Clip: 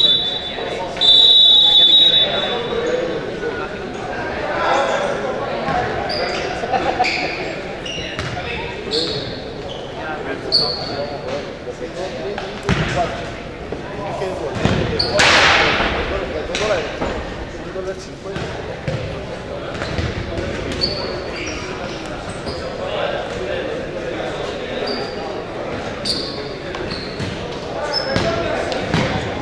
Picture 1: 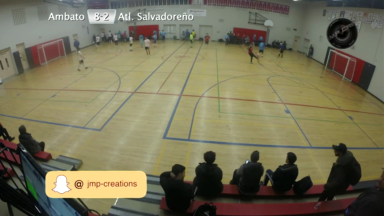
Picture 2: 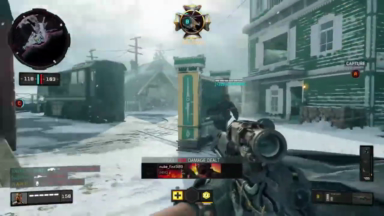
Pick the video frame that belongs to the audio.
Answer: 1